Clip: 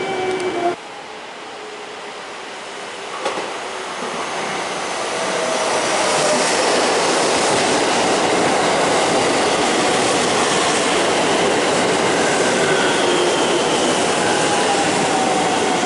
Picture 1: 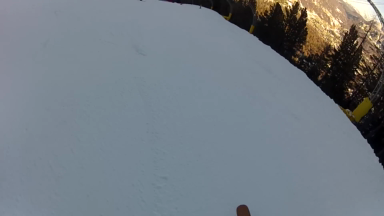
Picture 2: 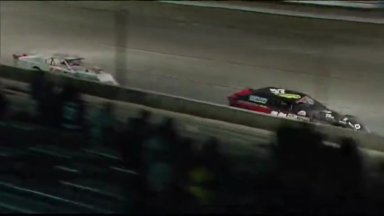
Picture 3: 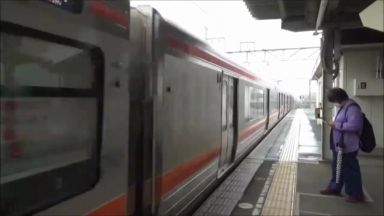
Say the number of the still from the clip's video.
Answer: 3